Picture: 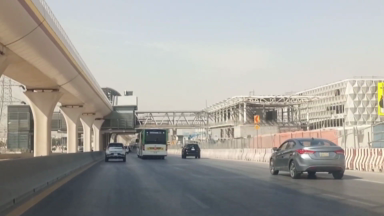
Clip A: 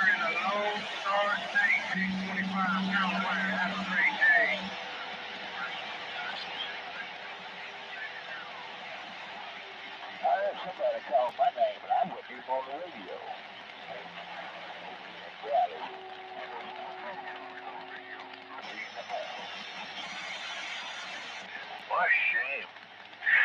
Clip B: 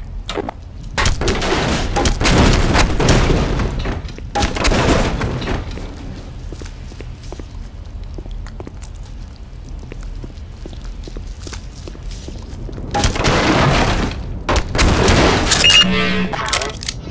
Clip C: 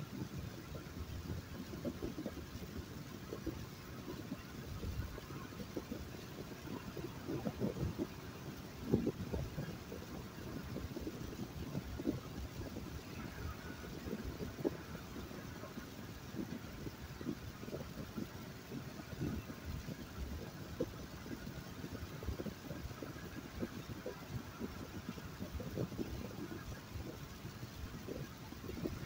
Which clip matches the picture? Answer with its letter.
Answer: C